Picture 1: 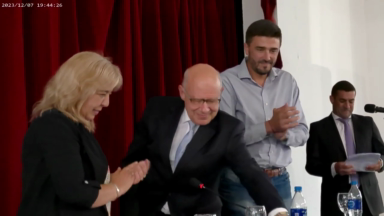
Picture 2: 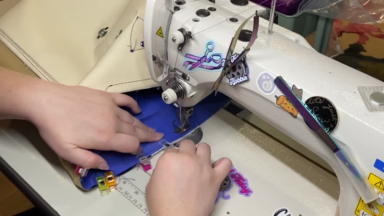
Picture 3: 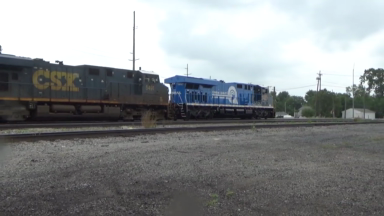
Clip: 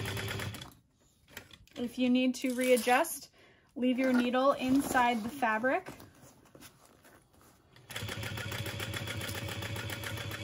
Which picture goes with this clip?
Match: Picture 2